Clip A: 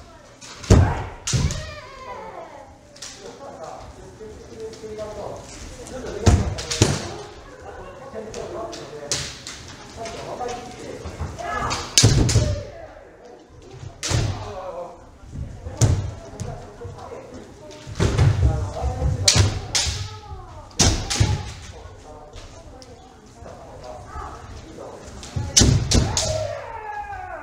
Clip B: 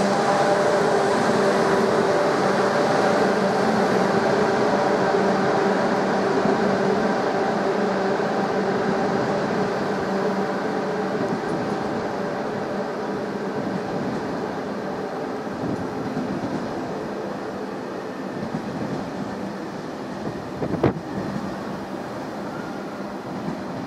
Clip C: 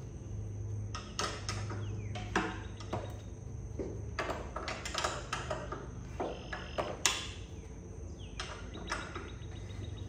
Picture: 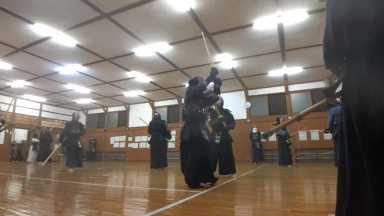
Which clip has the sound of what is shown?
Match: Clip A